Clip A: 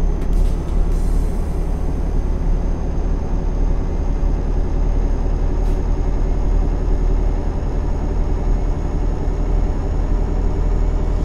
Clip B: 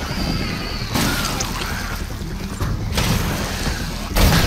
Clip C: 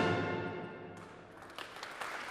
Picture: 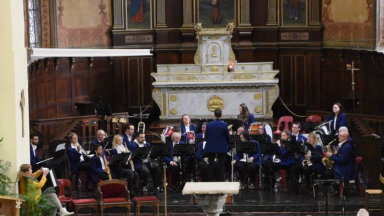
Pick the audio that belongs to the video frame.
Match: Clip C